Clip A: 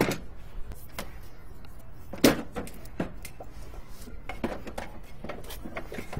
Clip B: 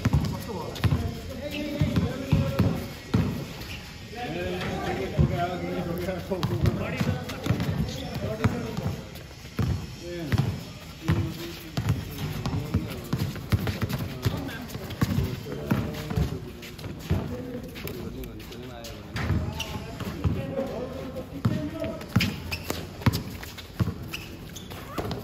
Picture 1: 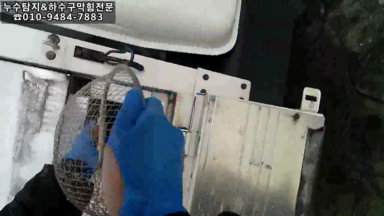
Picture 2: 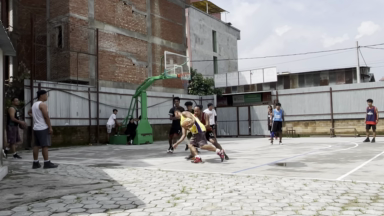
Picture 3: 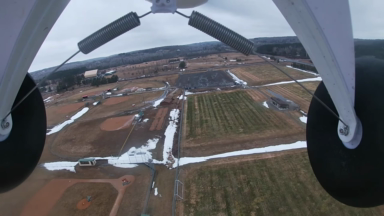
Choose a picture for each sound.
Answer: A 1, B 2